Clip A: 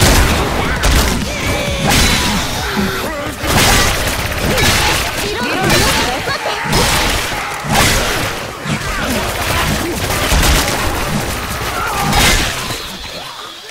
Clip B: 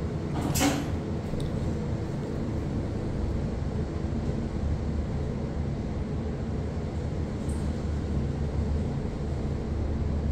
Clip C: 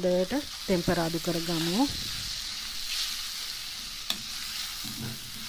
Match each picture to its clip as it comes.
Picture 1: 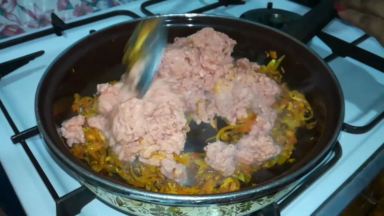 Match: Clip C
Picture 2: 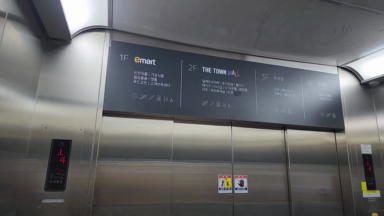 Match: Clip B